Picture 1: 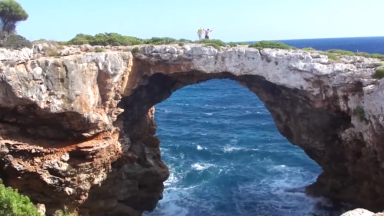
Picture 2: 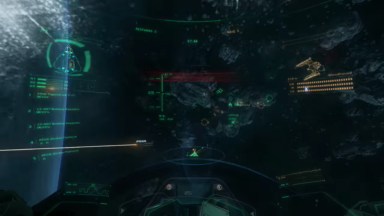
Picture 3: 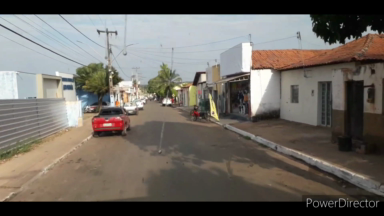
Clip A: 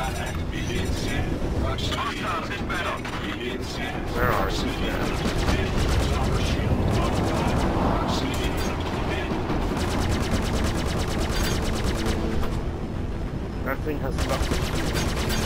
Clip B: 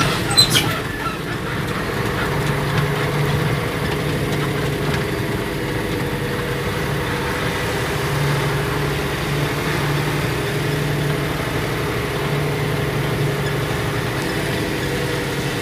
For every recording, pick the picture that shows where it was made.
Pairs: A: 2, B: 3